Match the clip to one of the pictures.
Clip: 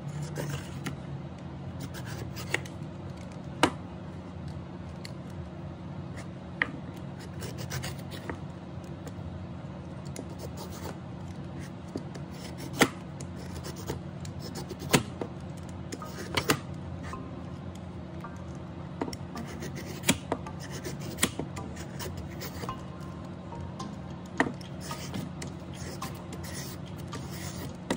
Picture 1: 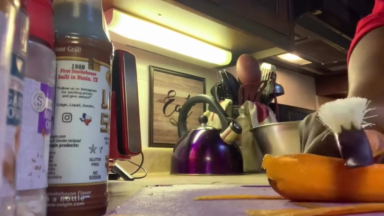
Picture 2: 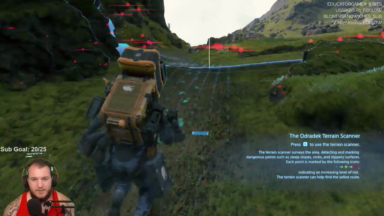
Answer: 1